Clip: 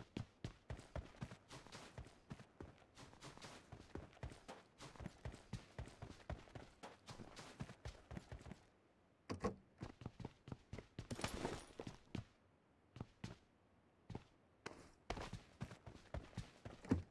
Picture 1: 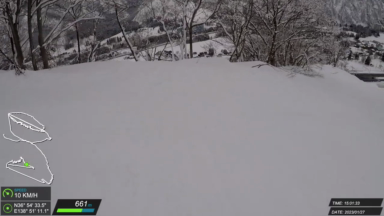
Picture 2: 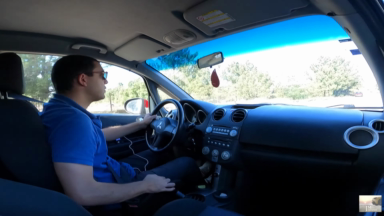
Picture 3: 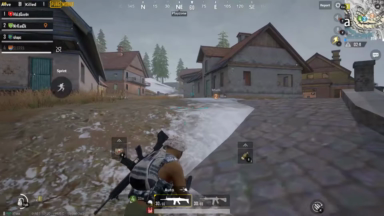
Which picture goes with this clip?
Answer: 3